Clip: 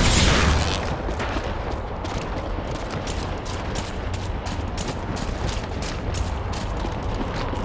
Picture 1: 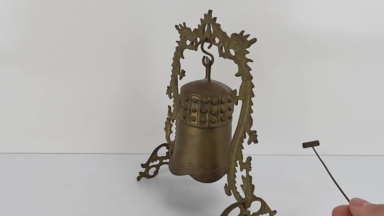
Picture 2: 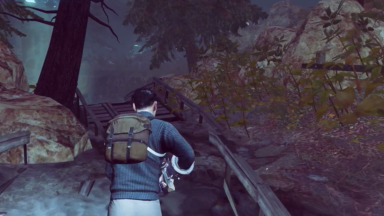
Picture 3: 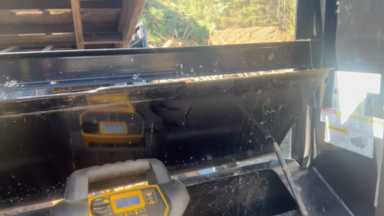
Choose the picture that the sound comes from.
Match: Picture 2